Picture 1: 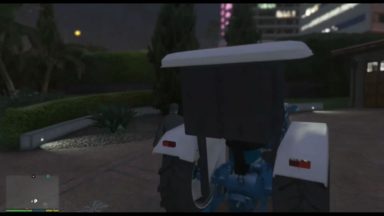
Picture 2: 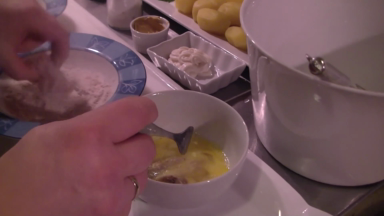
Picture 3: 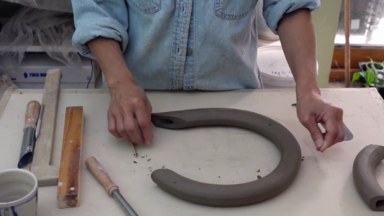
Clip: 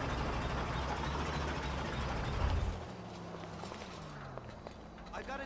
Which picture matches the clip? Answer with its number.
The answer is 1